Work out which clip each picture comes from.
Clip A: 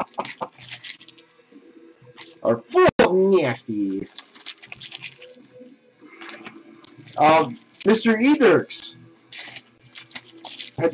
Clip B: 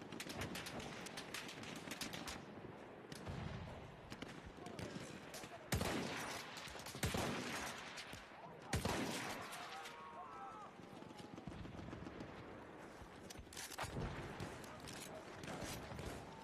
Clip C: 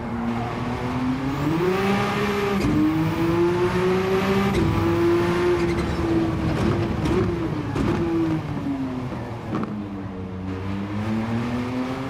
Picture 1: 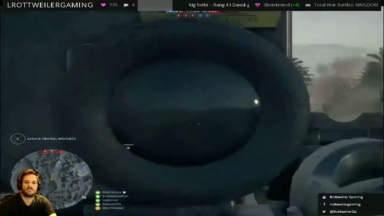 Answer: B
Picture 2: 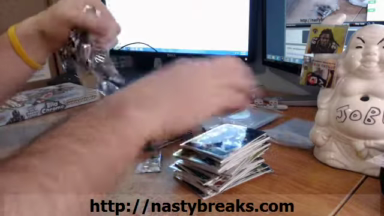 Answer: A